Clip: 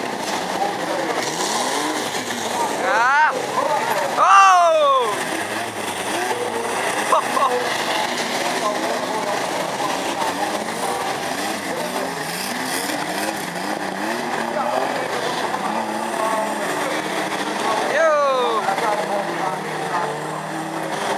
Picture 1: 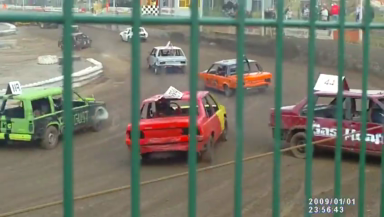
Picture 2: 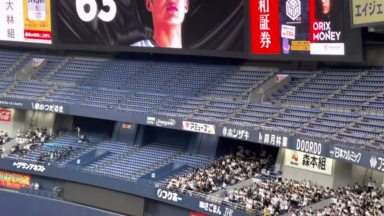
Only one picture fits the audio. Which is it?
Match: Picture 1